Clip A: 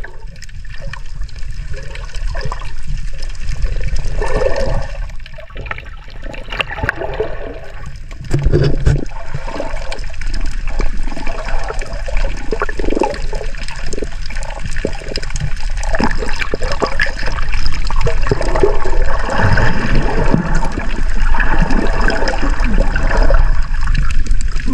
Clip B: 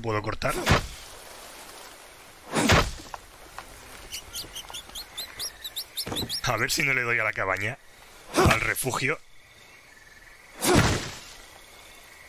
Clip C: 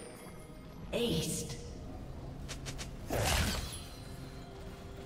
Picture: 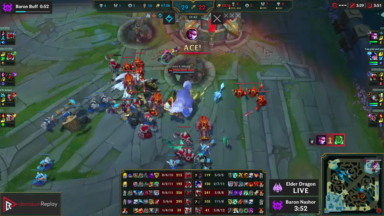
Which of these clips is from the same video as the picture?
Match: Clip C